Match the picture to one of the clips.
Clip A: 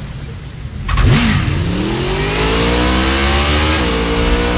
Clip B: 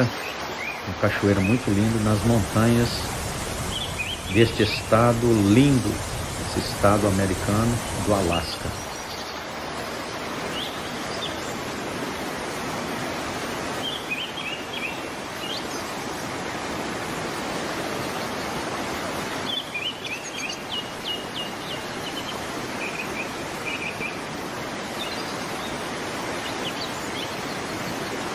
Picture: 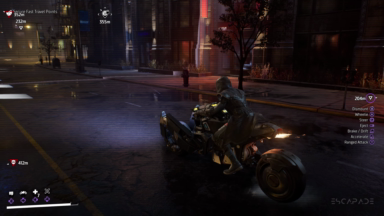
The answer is A